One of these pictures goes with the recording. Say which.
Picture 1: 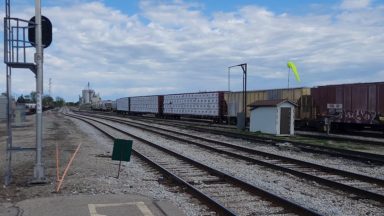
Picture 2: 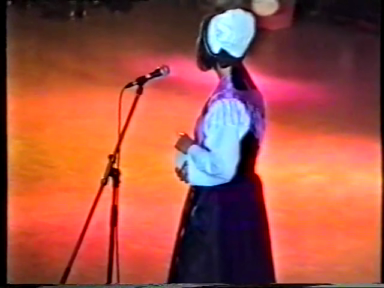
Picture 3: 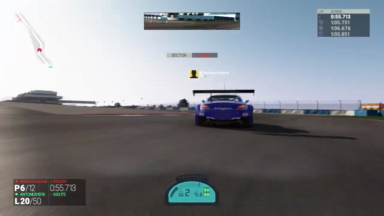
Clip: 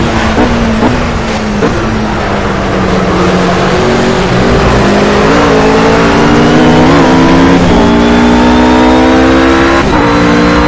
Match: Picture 3